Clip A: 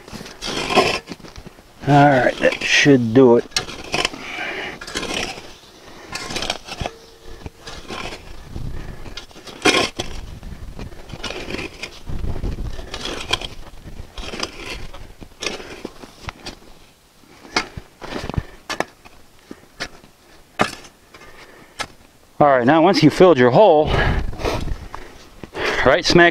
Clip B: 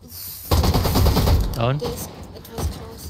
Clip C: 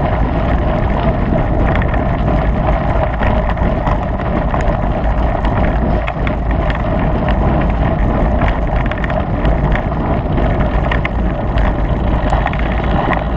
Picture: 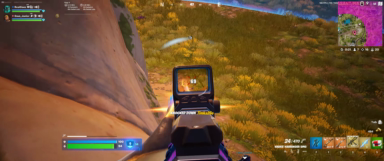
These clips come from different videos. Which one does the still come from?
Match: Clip B